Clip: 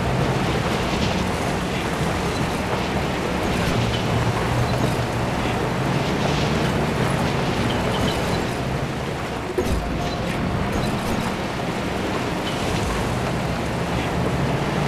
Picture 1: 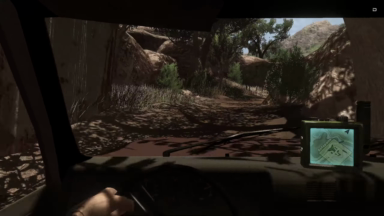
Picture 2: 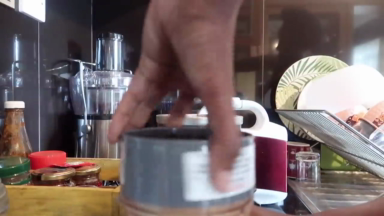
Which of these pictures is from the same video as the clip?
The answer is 1